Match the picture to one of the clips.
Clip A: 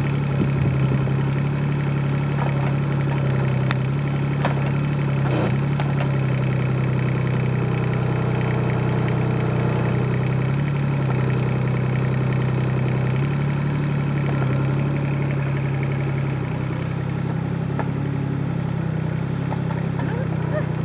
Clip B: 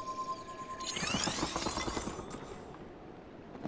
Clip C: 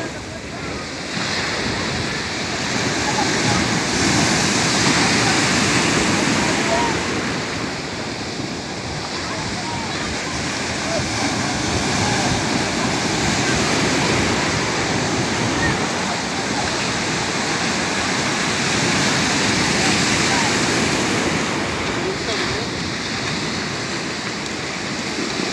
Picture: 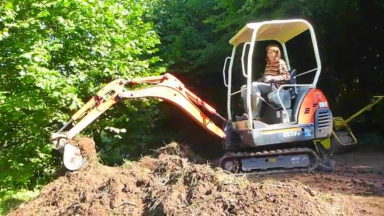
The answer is A